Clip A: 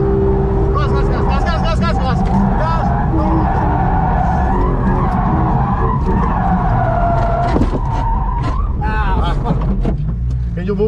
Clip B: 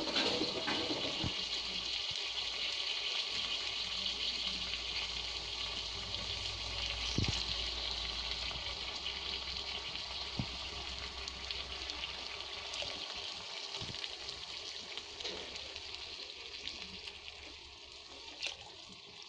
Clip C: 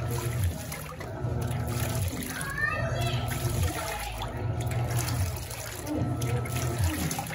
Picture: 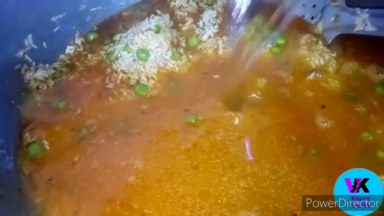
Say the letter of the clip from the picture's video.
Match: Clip B